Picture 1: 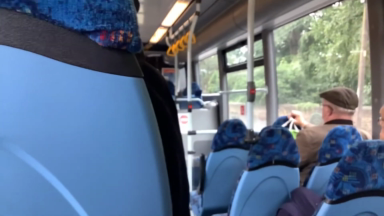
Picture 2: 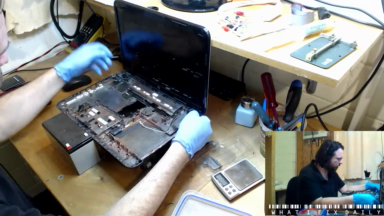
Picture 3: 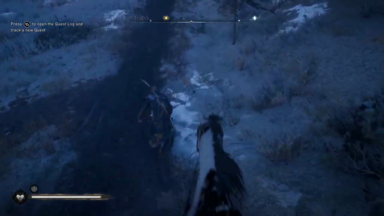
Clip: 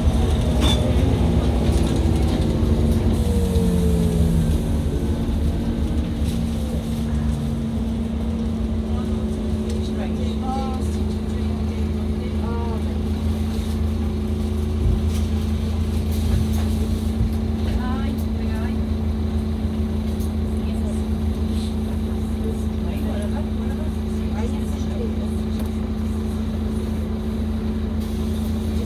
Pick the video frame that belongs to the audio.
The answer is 1